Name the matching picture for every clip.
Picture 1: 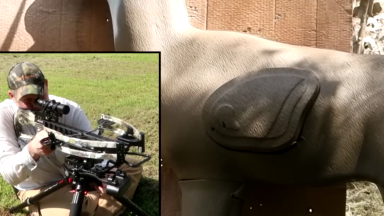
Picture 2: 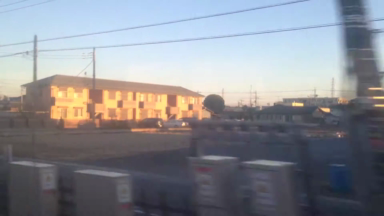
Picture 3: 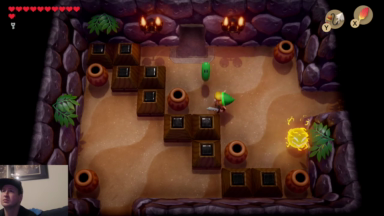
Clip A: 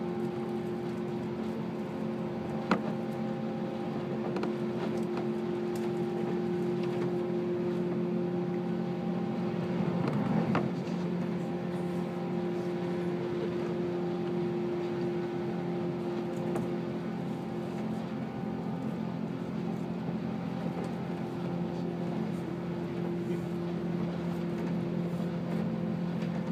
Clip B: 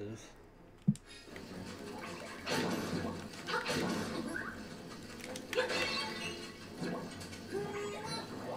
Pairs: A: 2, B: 3